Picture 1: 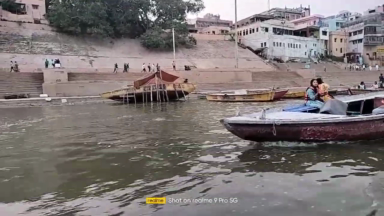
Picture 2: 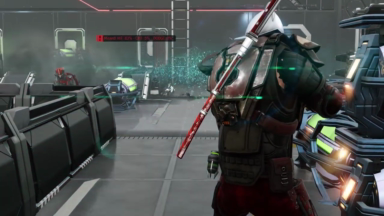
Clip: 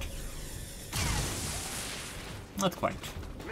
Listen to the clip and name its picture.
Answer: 2